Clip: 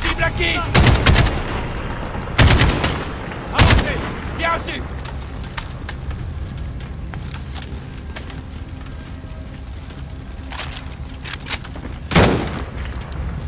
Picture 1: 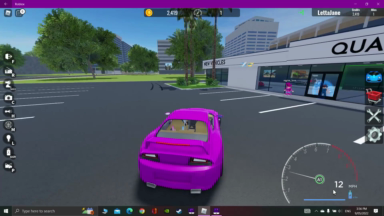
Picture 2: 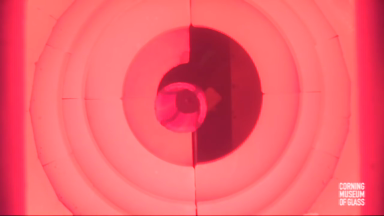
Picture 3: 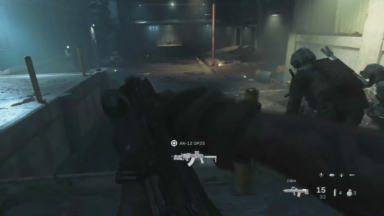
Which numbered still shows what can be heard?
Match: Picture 3